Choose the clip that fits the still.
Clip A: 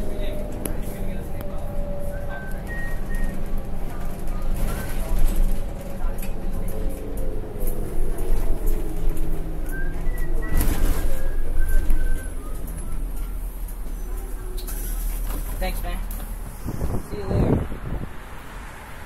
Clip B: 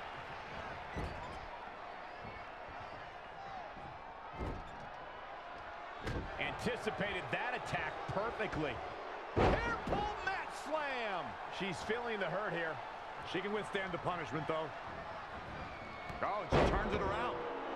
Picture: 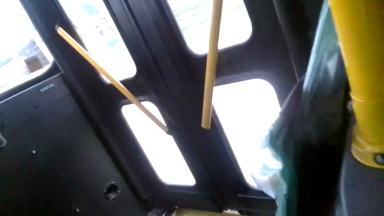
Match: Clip A